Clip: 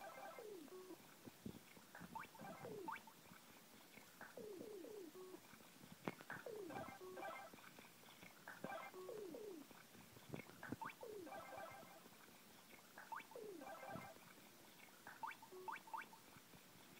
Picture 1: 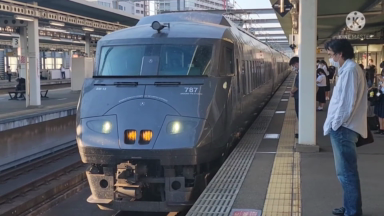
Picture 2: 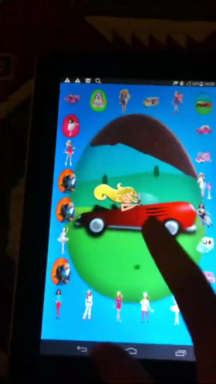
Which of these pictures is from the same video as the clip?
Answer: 2